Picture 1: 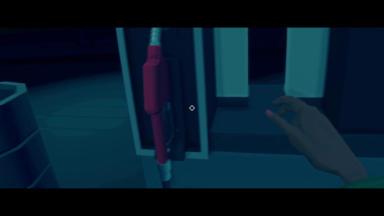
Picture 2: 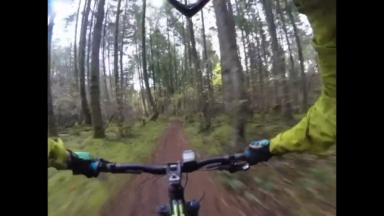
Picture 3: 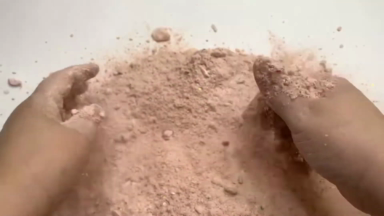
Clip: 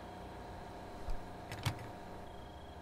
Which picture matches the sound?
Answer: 1